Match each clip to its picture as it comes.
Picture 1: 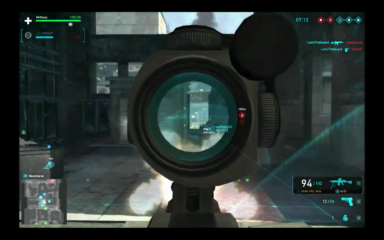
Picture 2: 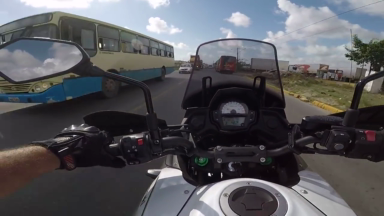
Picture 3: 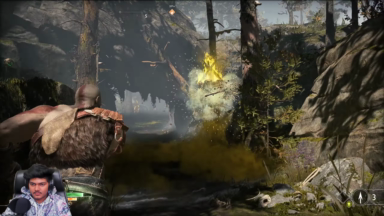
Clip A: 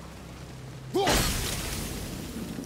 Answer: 3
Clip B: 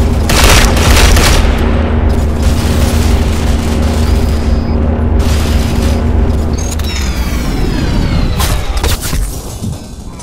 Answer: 1